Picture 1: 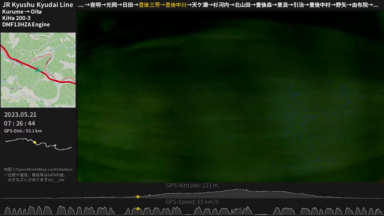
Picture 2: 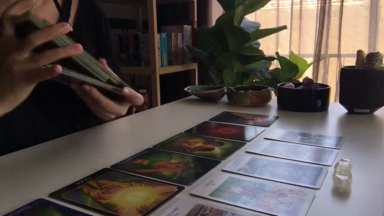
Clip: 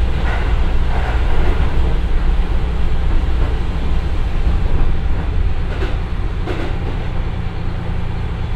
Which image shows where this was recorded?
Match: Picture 1